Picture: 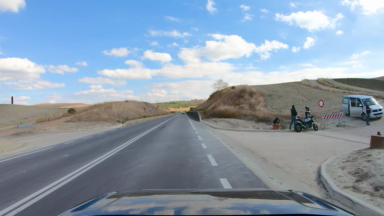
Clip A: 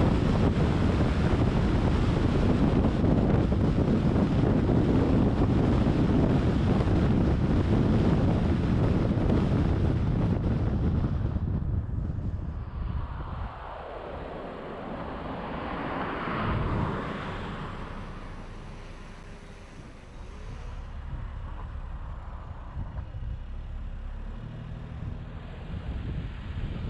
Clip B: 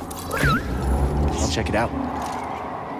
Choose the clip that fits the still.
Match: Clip A